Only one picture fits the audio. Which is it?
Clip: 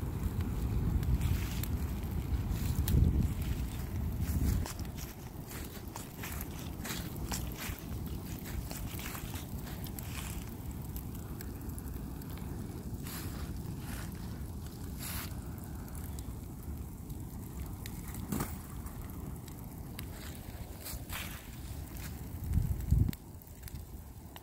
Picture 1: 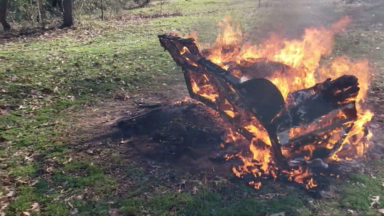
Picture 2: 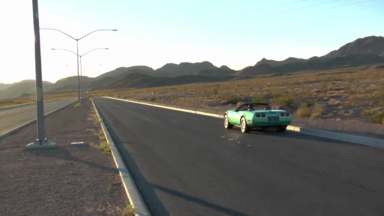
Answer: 1